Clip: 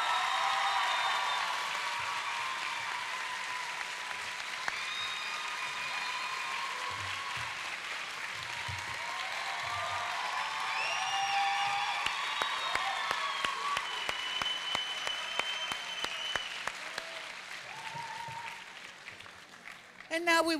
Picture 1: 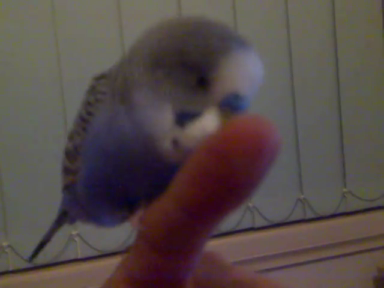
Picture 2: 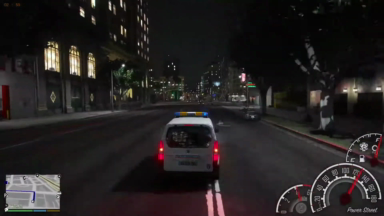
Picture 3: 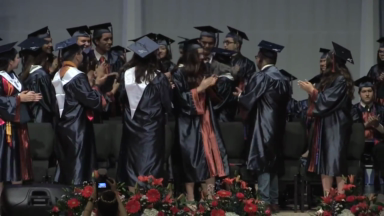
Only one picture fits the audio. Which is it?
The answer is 3